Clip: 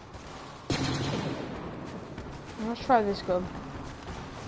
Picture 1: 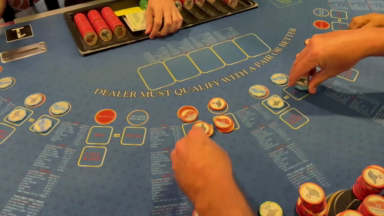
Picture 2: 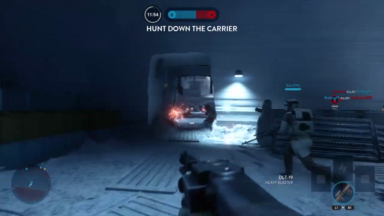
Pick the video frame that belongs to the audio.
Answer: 2